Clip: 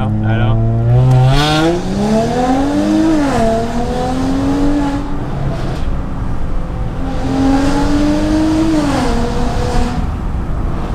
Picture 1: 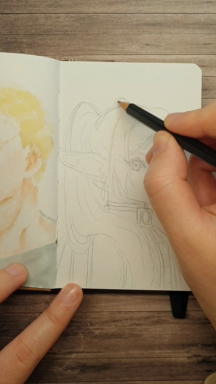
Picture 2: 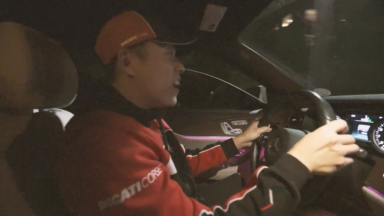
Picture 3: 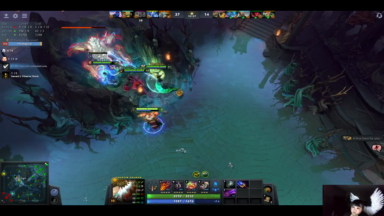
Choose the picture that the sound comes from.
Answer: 2